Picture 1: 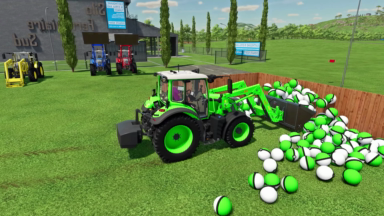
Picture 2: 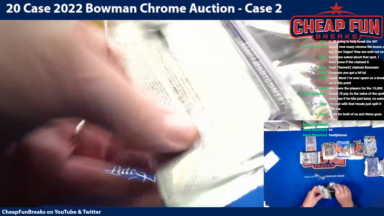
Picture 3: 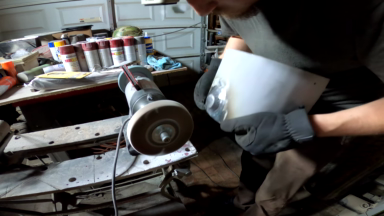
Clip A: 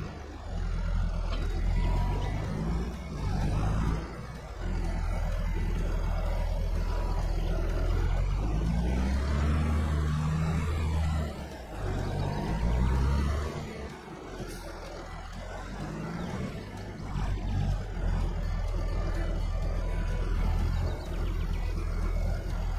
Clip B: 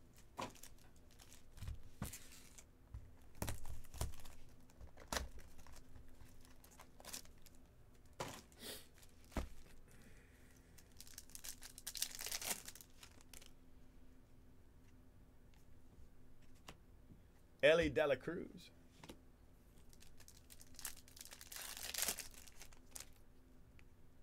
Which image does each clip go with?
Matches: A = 1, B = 2